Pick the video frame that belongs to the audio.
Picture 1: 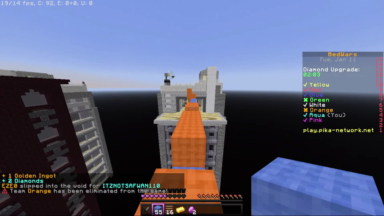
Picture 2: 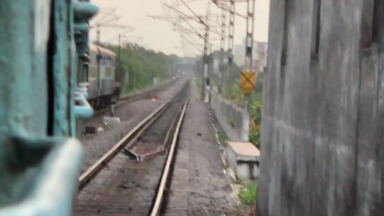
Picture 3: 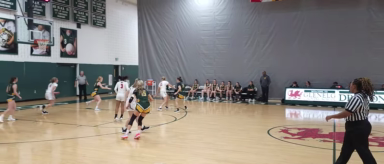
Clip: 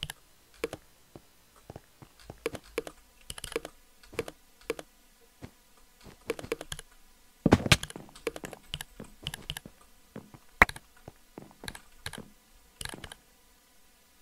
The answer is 1